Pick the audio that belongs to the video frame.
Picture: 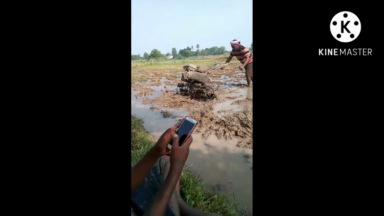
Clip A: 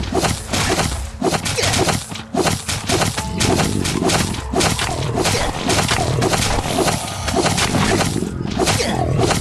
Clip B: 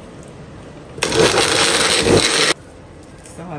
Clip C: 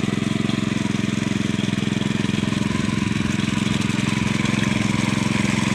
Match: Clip C